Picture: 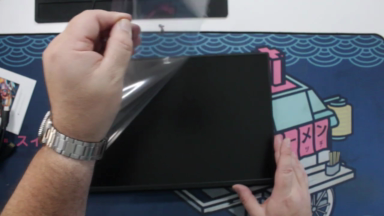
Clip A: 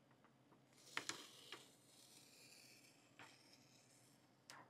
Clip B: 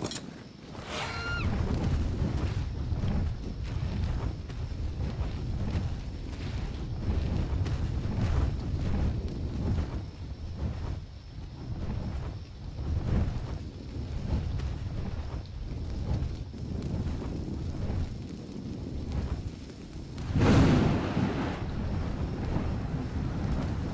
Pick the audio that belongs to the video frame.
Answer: A